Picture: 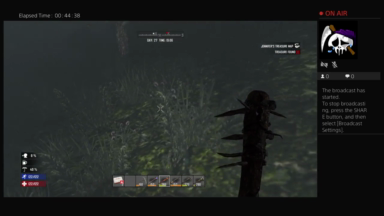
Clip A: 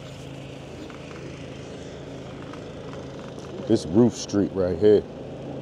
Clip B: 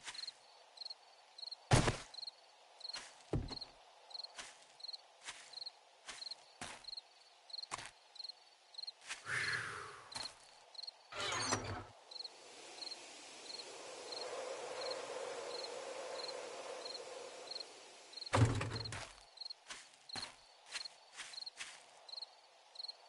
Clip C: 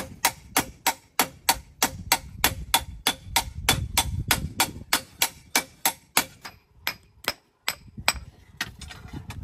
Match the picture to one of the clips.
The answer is B